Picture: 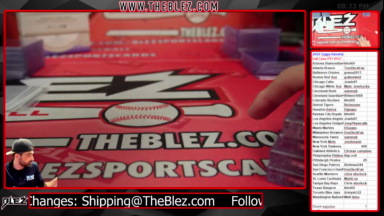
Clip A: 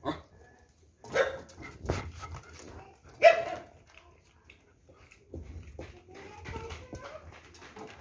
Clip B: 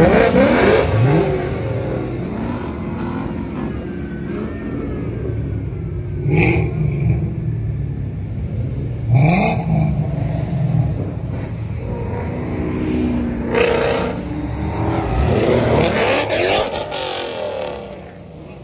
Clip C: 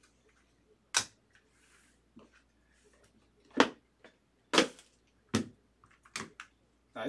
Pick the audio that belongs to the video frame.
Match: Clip C